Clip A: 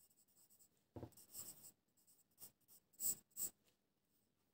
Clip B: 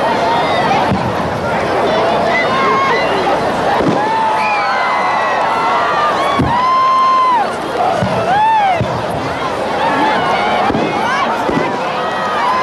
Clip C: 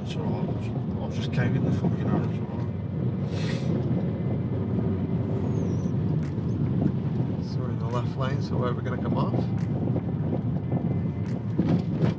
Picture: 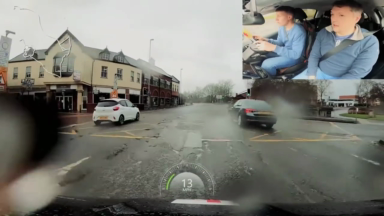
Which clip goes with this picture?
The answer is C